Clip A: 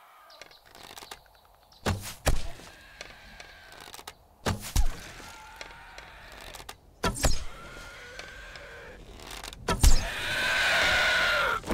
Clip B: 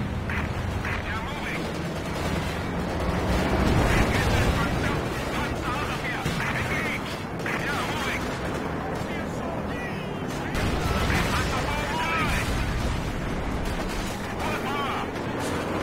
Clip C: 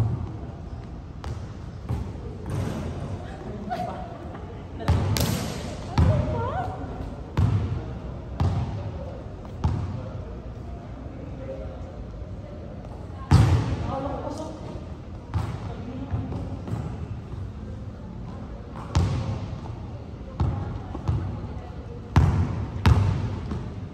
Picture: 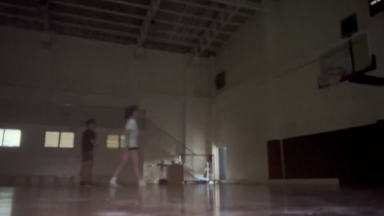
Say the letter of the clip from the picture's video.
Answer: C